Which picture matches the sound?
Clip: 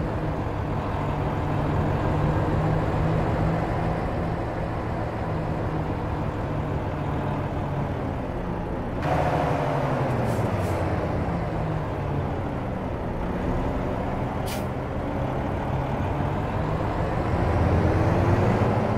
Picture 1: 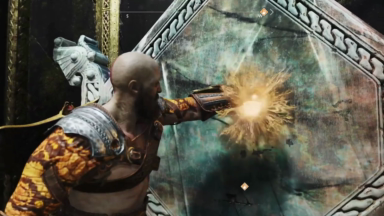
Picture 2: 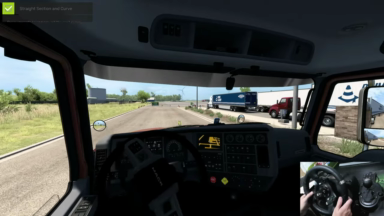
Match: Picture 2